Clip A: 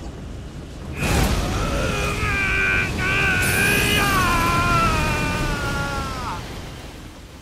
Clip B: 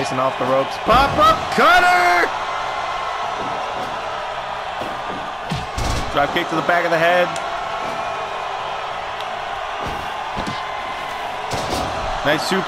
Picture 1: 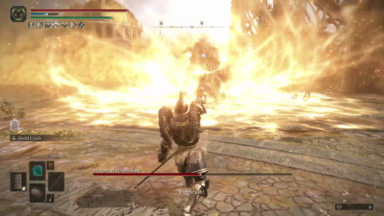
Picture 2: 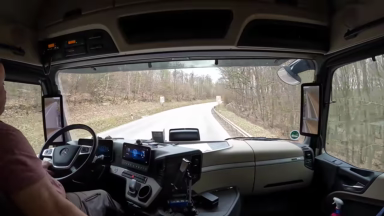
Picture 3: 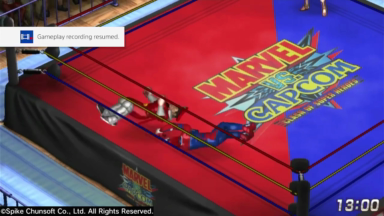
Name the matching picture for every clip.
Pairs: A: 1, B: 3